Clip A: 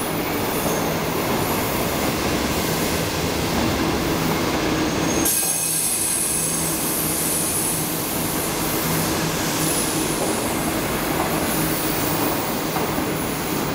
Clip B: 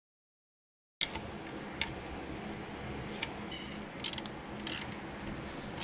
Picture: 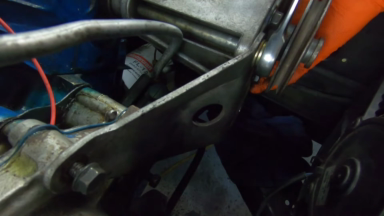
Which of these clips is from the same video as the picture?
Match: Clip B